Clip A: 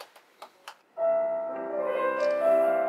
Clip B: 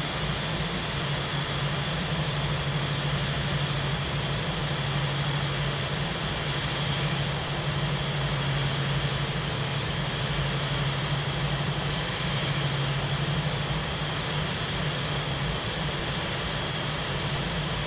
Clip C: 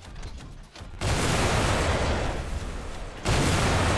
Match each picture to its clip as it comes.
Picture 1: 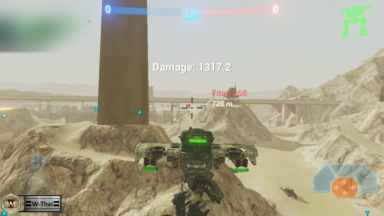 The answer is C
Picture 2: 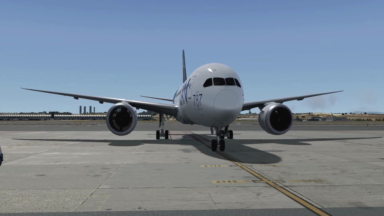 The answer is B